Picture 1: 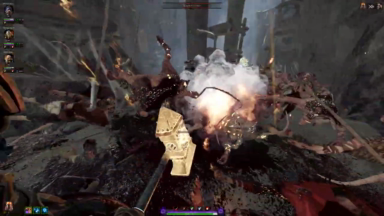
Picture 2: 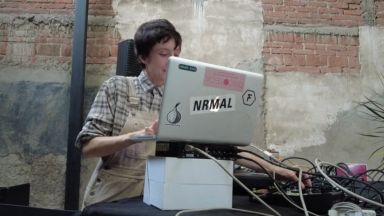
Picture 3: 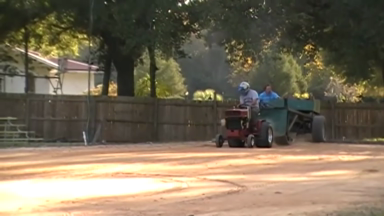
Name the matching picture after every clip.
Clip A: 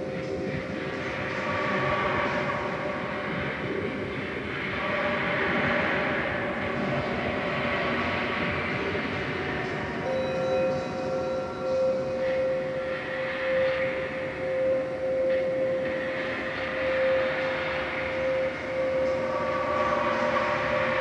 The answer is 2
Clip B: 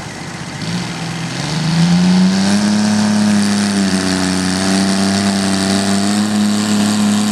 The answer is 3